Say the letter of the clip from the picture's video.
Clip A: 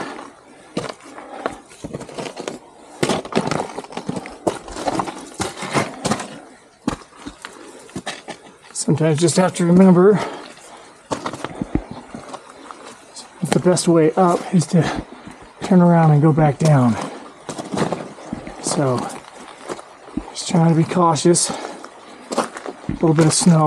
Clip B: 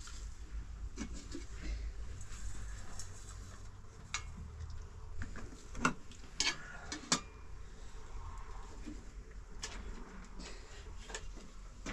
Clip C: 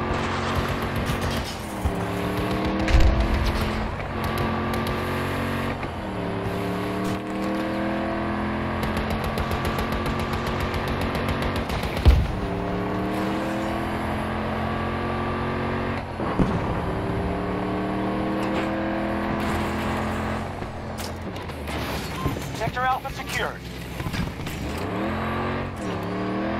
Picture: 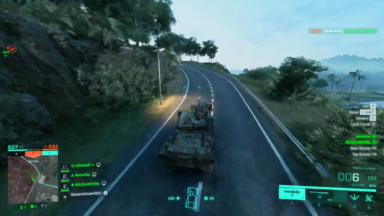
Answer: C